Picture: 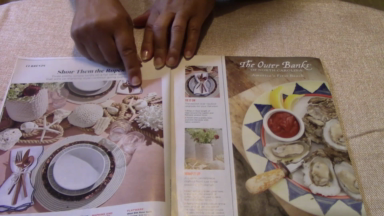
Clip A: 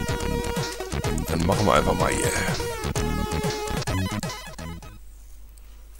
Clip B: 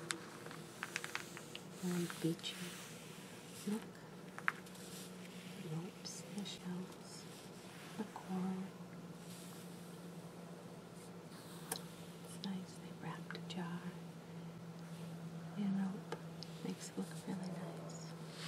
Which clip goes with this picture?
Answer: B